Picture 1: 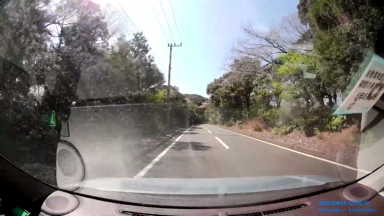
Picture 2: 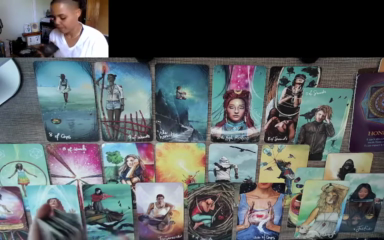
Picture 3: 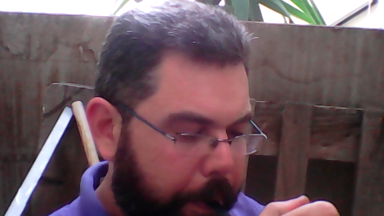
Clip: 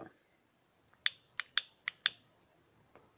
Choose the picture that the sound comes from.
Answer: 3